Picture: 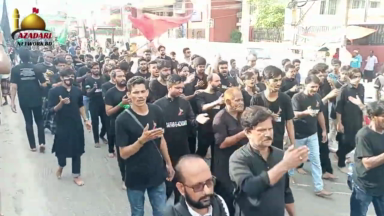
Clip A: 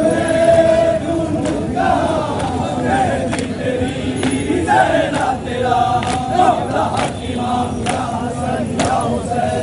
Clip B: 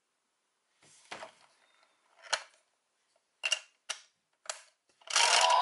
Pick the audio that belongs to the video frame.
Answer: A